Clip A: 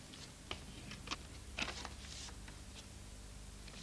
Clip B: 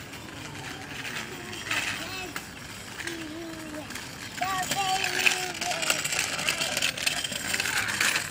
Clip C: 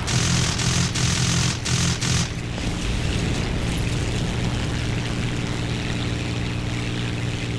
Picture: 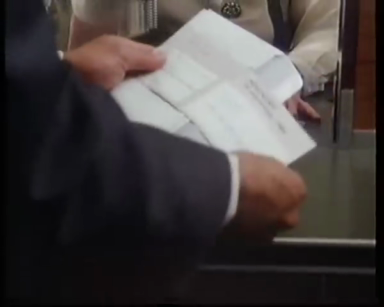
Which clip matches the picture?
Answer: A